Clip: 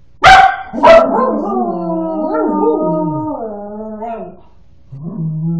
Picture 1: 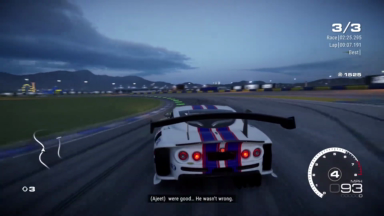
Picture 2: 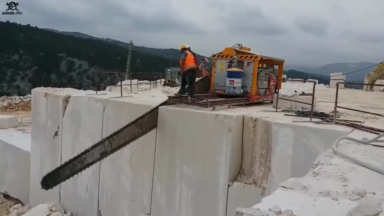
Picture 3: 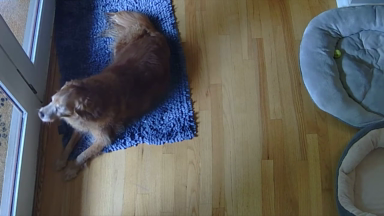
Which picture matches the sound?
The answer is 3